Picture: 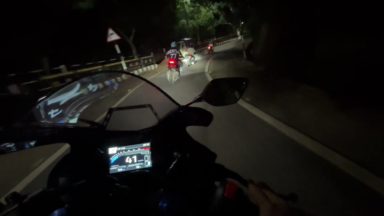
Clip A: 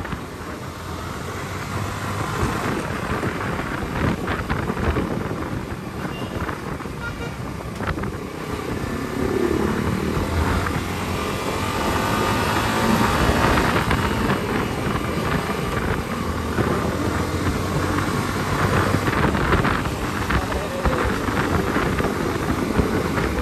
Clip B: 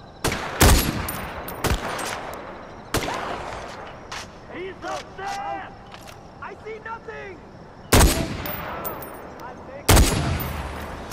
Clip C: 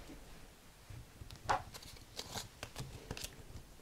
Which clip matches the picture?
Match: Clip A